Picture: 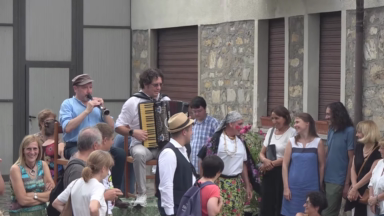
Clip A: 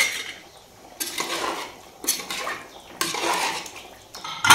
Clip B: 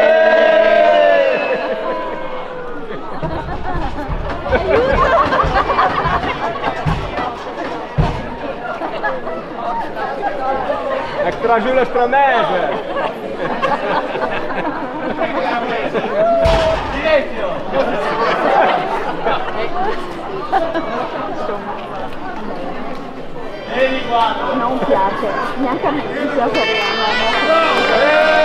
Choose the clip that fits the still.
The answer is B